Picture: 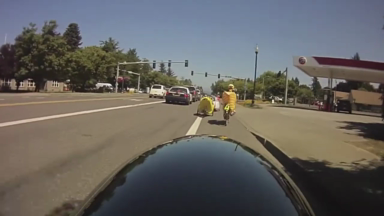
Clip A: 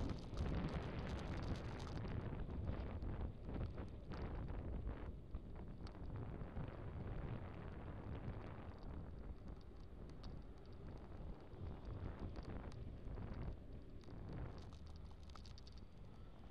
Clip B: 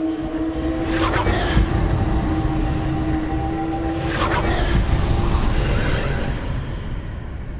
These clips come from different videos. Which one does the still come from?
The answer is A